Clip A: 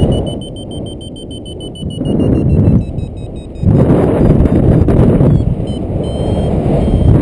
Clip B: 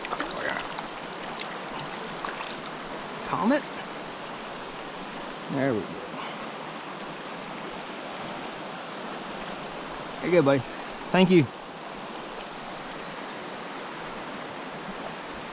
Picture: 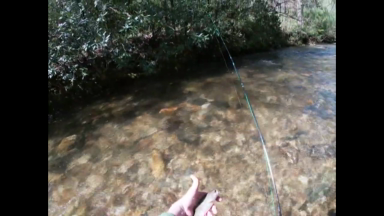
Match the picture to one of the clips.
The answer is B